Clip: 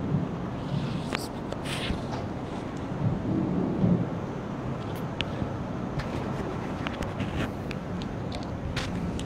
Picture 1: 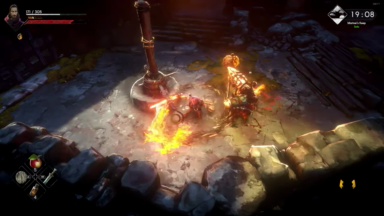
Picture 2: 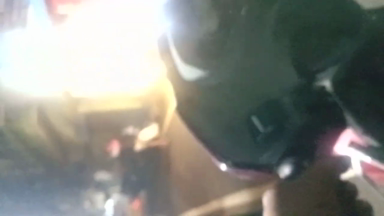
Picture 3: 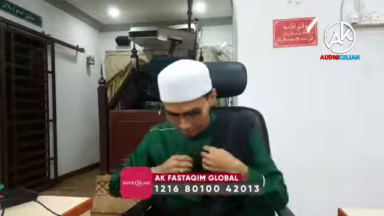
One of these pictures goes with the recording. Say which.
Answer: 3